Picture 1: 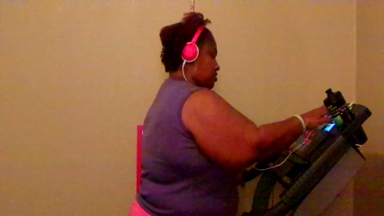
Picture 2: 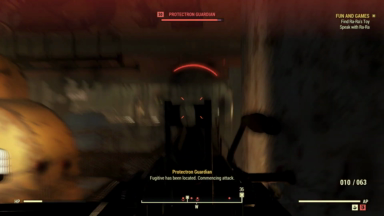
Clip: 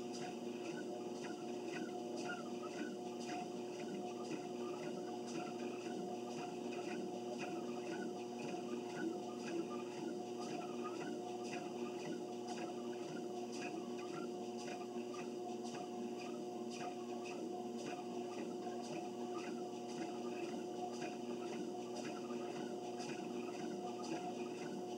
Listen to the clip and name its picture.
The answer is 1